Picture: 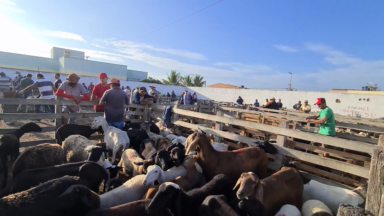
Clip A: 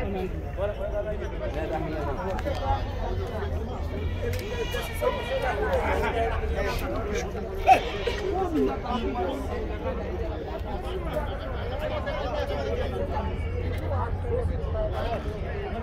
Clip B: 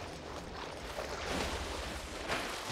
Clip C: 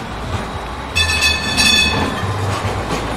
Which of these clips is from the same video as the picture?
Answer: A